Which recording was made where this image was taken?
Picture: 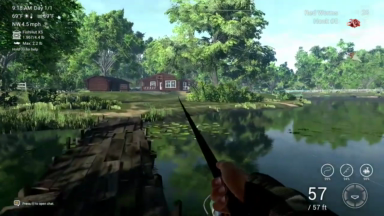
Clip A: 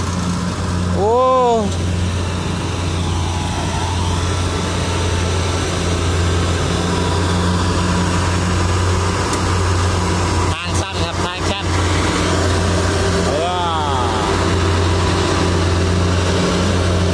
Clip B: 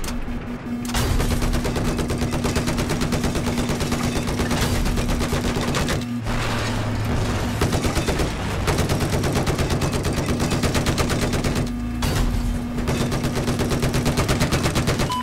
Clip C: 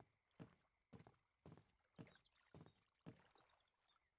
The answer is C